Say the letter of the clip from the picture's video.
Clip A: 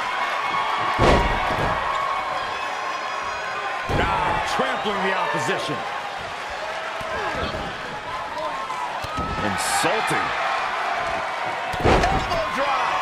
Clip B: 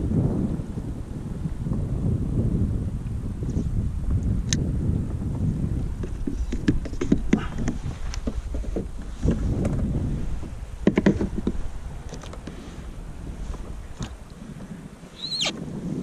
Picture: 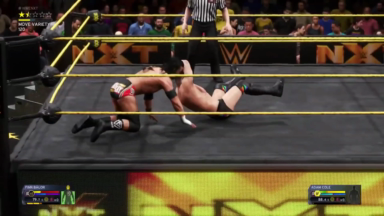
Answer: A